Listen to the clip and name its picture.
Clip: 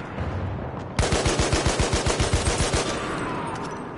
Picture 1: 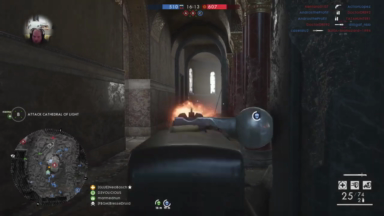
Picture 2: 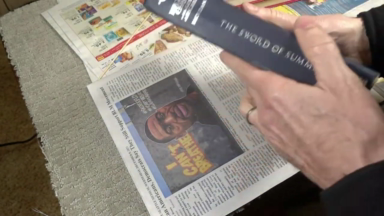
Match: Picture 1